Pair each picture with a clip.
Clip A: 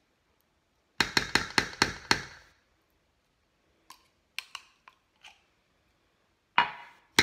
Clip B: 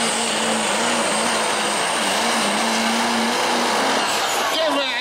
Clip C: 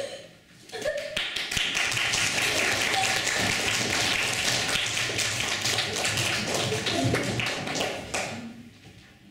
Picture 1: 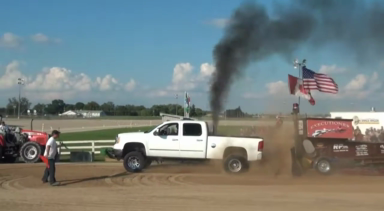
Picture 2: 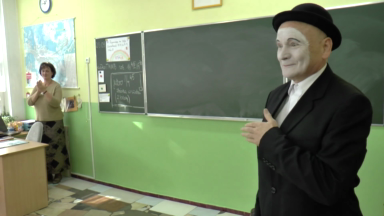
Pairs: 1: B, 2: C